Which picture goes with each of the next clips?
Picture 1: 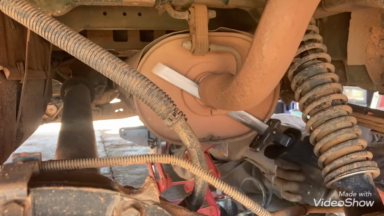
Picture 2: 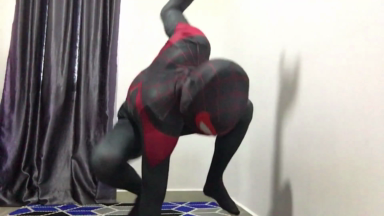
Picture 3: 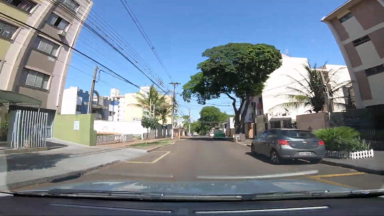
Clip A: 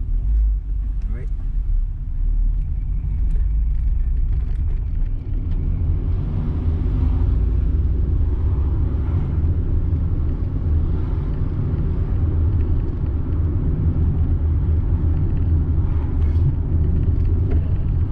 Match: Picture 3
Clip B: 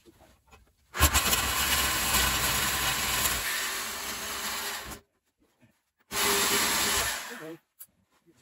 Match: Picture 1